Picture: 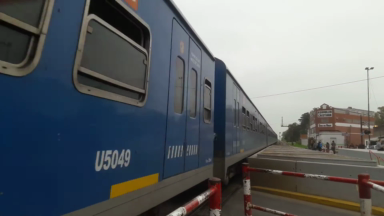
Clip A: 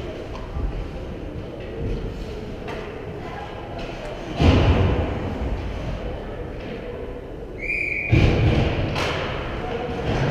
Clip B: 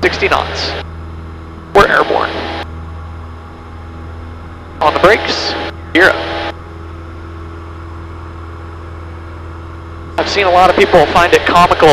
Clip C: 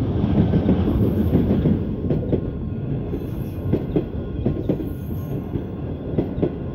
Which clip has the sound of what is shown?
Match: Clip C